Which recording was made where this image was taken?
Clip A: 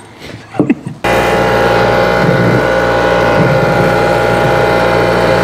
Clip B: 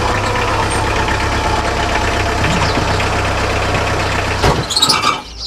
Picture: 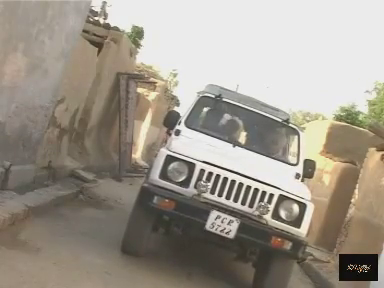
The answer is B